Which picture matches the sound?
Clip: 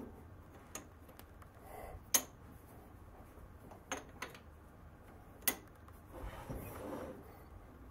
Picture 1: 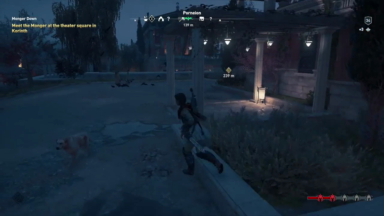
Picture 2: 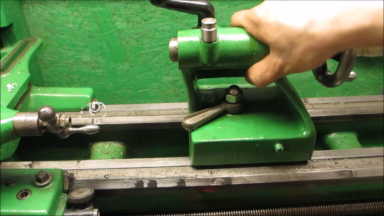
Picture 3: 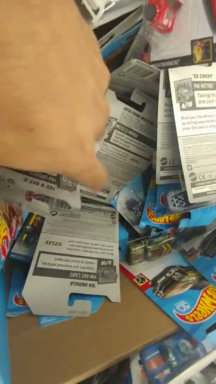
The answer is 2